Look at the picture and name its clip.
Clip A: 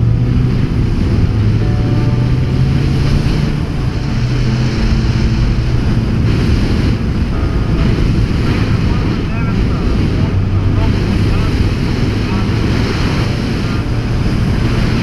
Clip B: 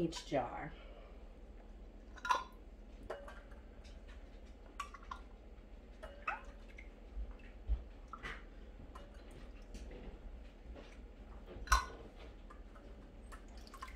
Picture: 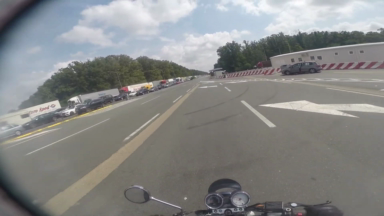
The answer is A